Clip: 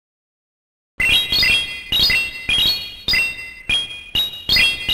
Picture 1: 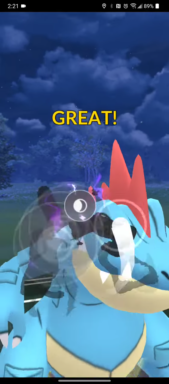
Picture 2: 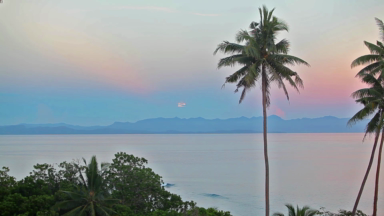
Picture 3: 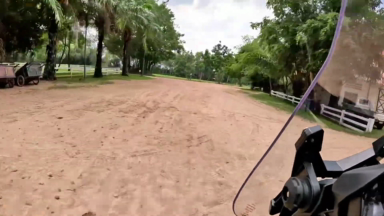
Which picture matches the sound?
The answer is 1